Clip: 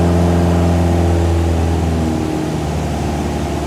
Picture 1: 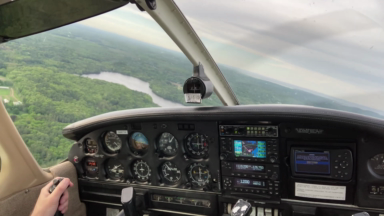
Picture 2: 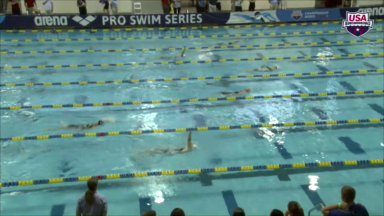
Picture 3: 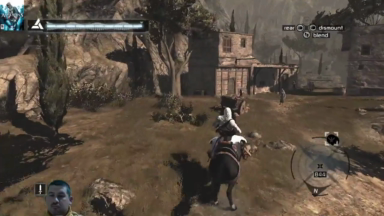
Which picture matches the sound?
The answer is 1